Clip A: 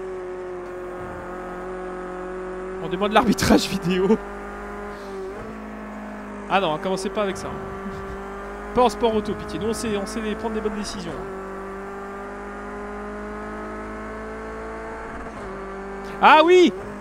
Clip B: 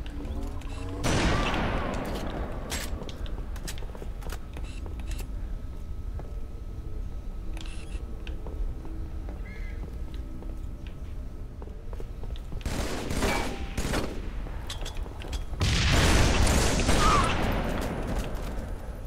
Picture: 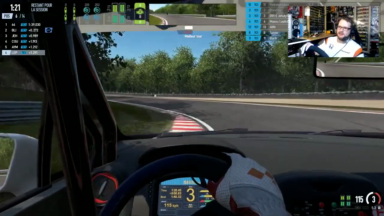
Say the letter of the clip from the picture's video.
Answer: A